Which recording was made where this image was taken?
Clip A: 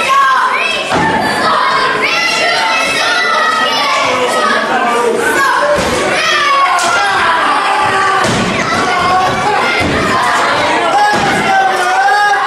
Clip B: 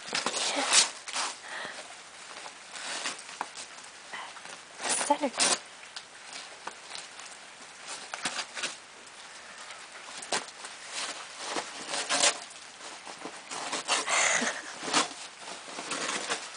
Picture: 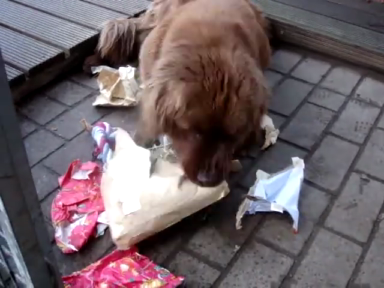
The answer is B